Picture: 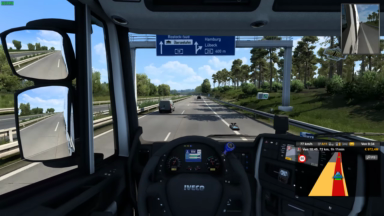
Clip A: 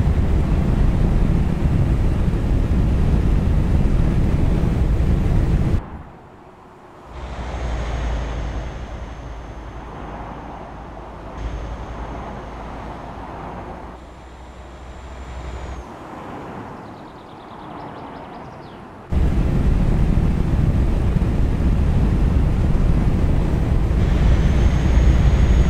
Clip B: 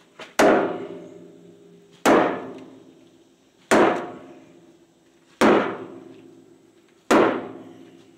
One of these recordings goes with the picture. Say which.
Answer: A